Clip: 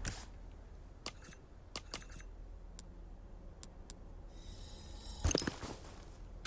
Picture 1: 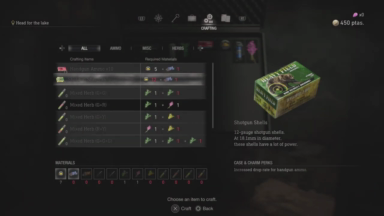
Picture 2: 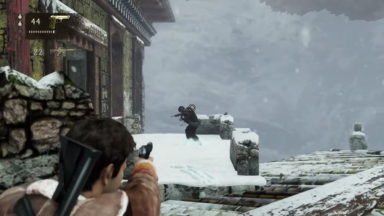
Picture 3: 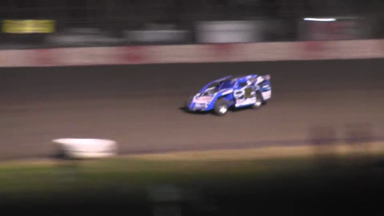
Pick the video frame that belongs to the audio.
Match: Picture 1